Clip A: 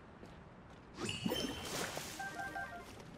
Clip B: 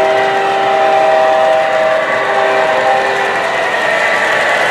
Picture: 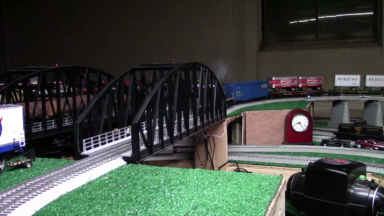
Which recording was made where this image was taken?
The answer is B